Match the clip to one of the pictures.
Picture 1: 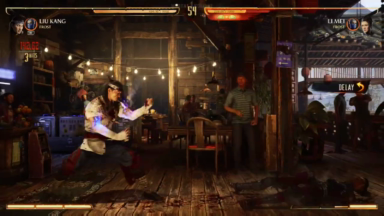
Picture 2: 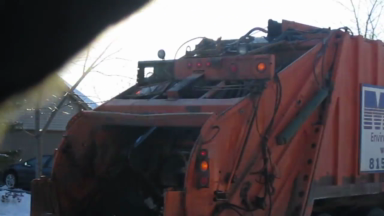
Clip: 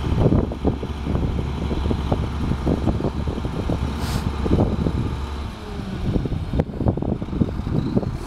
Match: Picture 2